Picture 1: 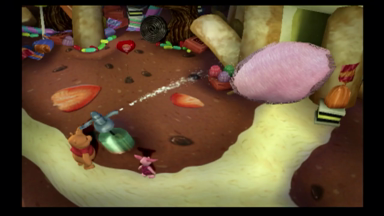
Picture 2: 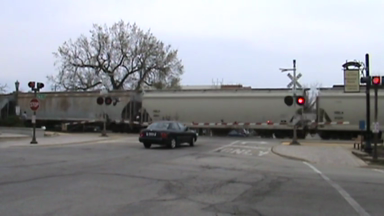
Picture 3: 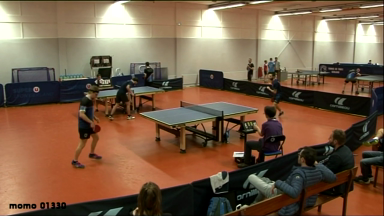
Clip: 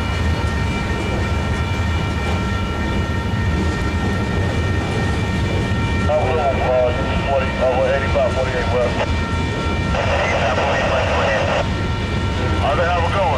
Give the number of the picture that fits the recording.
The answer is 2